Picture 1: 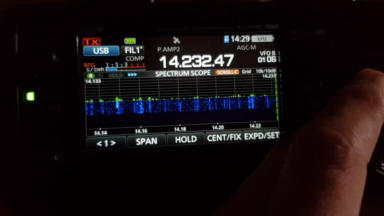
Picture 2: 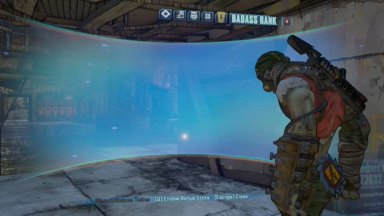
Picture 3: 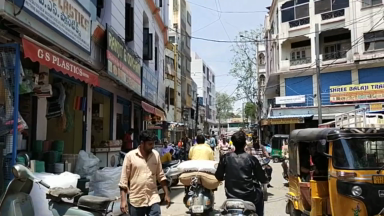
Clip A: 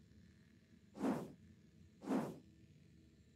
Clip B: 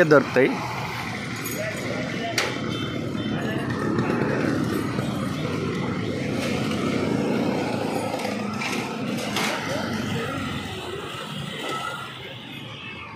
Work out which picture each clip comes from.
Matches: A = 2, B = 3